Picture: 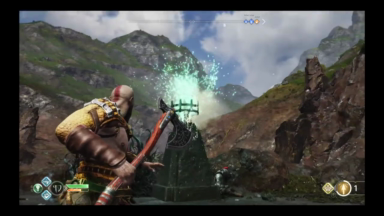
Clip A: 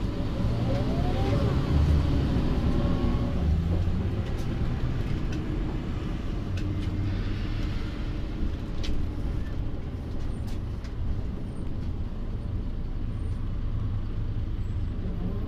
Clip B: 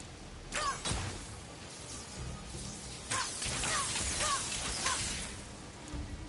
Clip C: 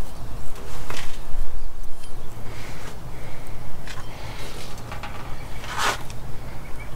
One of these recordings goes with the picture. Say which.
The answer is B